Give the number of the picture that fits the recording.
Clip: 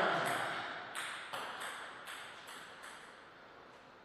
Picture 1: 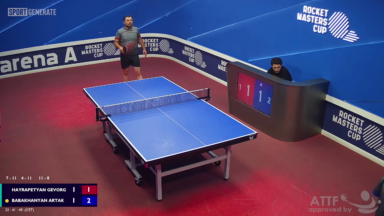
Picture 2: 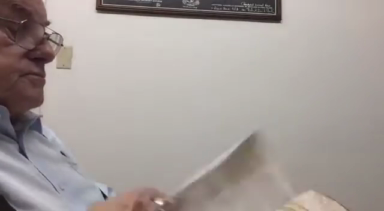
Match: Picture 1